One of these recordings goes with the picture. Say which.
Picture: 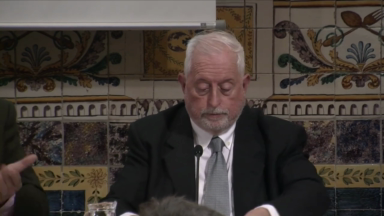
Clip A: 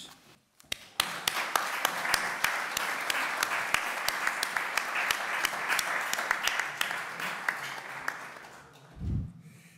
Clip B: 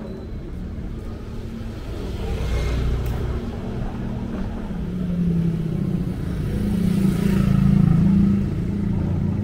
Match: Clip A